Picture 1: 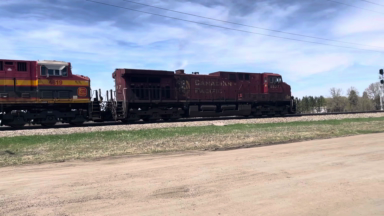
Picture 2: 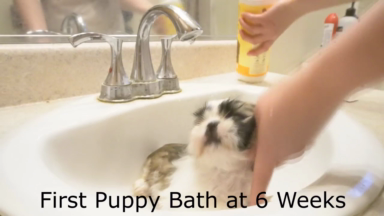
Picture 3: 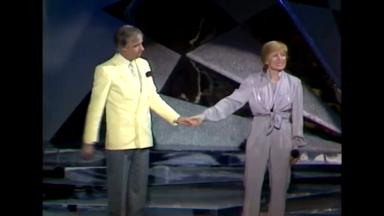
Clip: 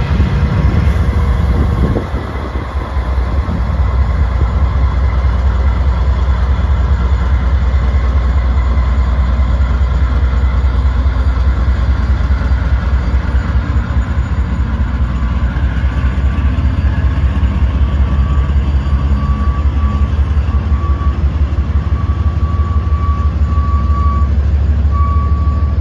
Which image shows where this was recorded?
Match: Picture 1